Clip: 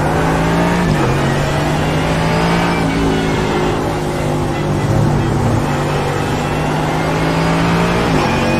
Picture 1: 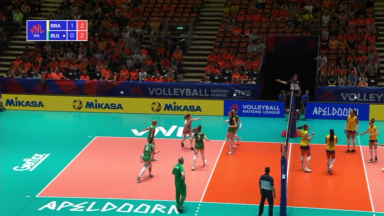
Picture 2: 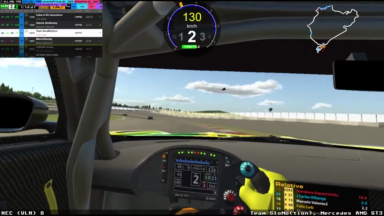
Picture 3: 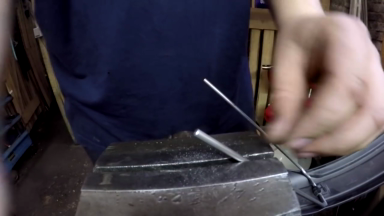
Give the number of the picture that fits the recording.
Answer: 2